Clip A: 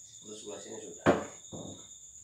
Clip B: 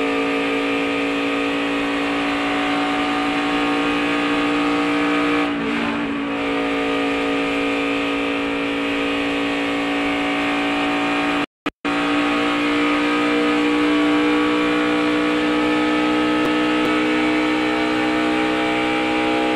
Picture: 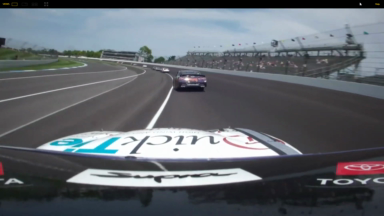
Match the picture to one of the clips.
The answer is B